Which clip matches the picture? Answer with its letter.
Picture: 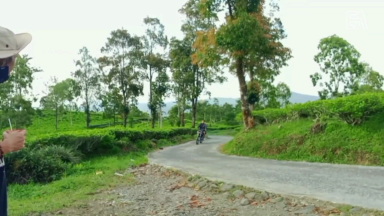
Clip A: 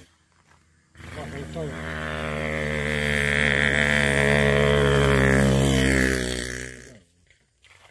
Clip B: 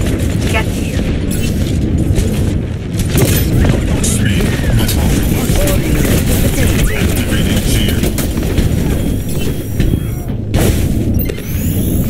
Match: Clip A